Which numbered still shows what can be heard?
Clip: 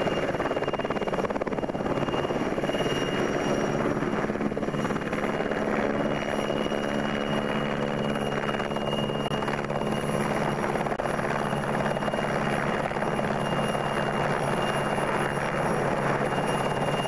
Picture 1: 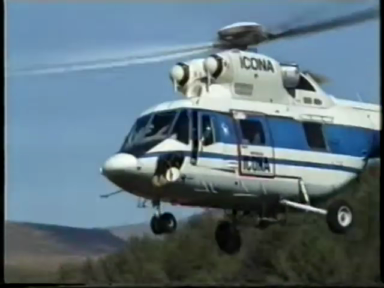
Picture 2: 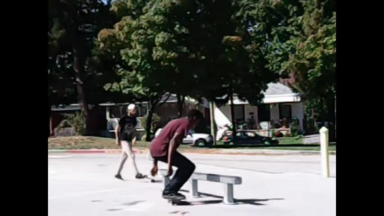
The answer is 1